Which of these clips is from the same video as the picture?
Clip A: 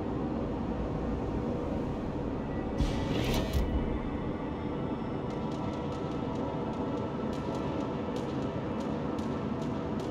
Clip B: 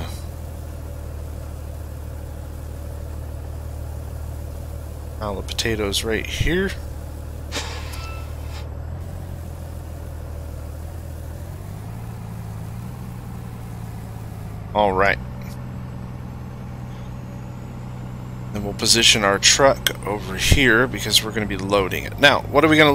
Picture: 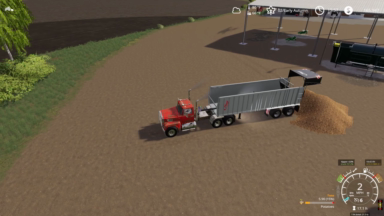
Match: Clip B